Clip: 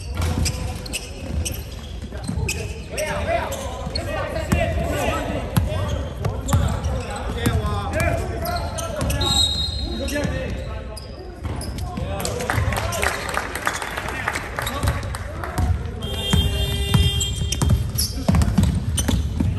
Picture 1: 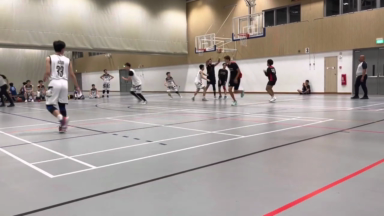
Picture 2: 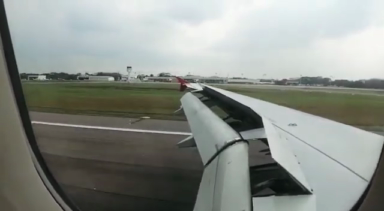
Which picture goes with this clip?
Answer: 1